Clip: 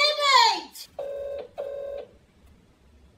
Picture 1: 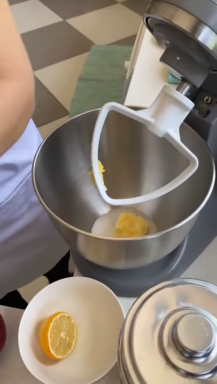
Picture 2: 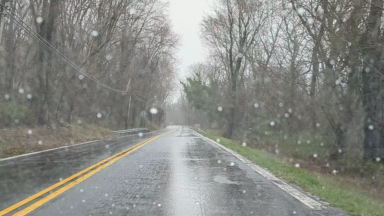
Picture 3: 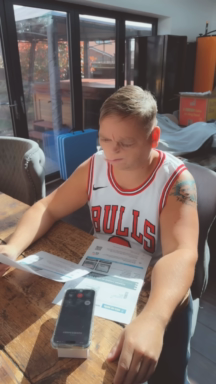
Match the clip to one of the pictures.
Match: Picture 3